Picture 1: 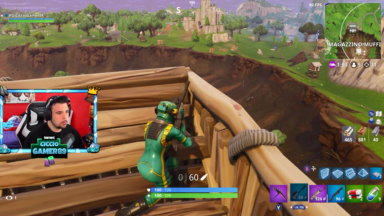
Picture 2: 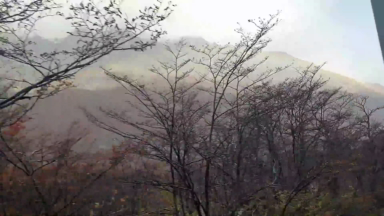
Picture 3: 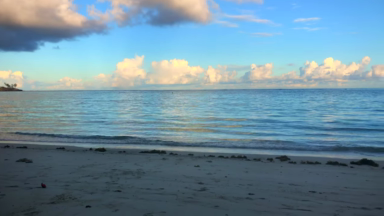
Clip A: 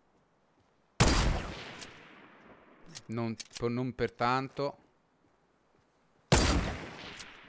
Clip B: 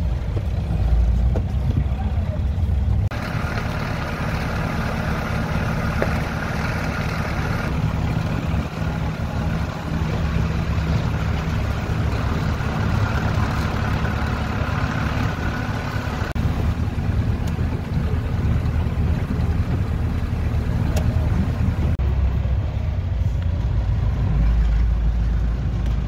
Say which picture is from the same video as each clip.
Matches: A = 1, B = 2